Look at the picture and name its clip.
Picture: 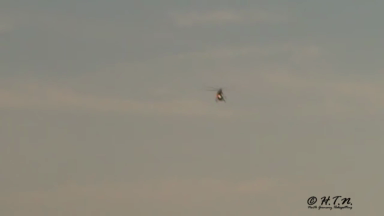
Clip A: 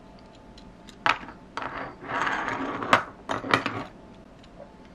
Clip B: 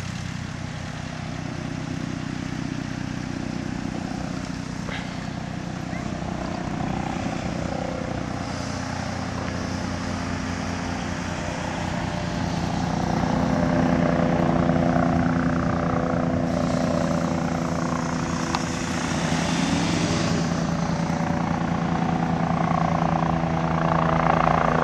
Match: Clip B